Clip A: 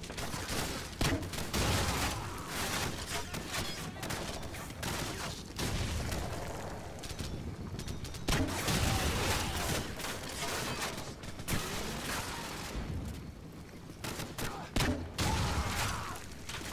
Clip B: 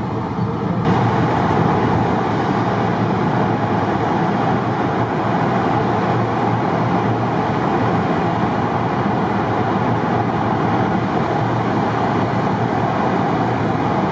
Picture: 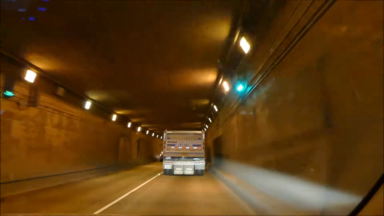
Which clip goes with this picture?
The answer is B